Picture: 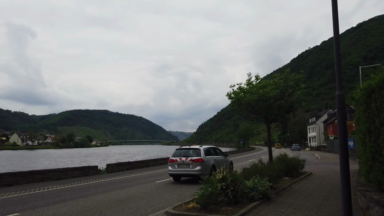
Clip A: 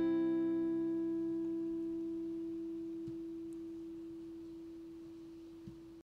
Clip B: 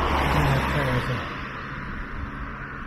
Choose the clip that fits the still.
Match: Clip B